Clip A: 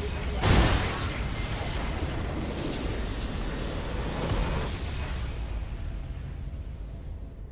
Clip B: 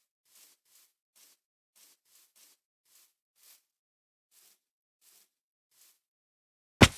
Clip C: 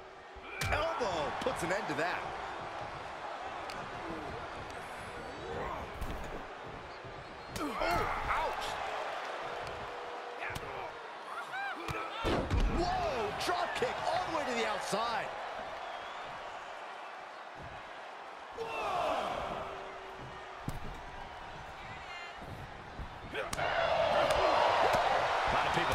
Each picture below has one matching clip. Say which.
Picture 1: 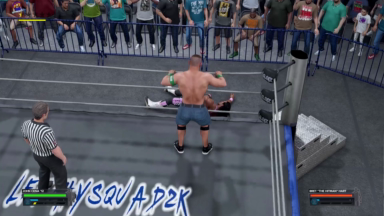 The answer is C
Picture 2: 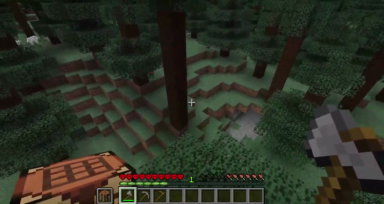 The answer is B